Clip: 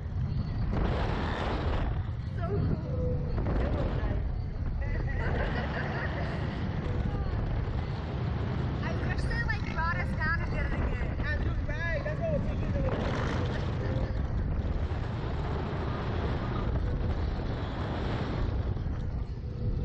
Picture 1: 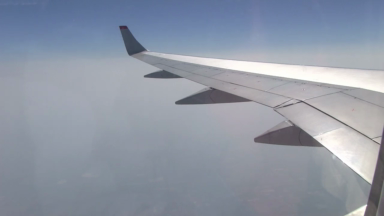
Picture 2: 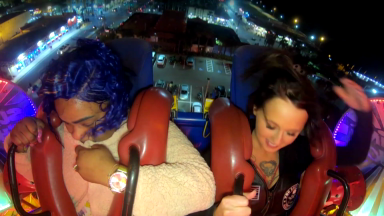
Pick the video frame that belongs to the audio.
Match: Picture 2